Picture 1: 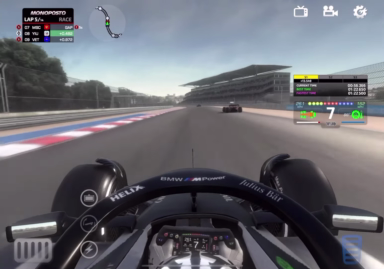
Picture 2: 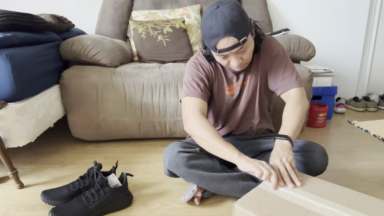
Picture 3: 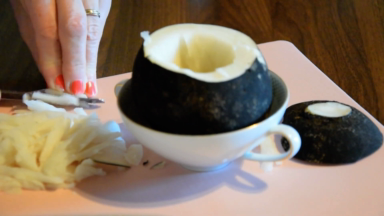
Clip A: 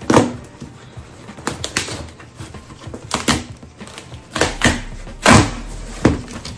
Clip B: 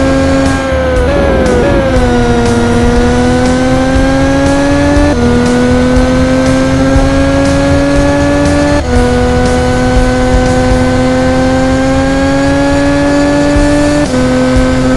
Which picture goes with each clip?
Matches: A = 2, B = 1